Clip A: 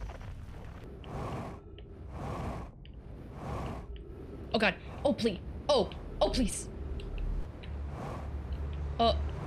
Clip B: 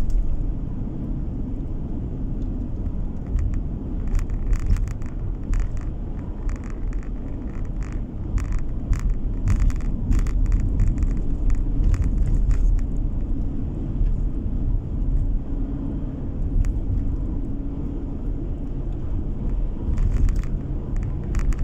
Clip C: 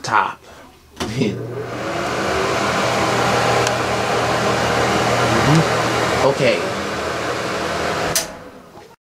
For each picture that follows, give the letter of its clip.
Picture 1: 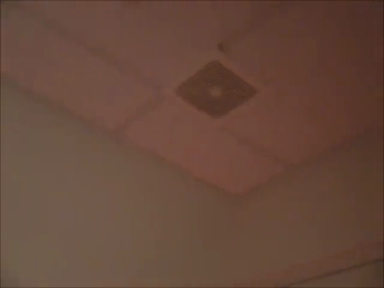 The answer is C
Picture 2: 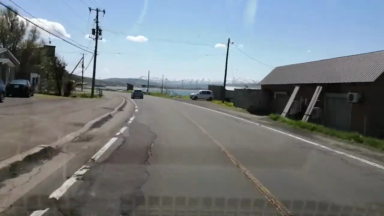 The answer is B